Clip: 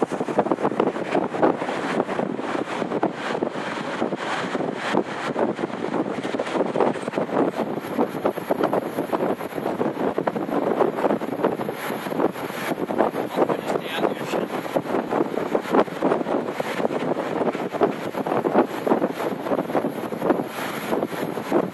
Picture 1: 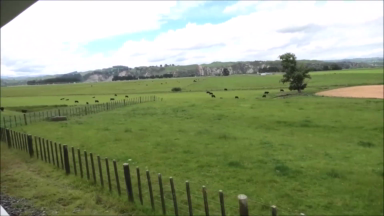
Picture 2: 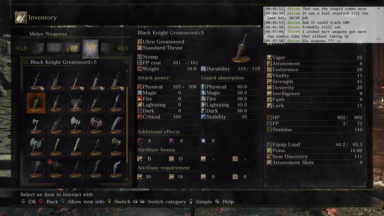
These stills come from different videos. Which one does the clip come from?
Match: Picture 1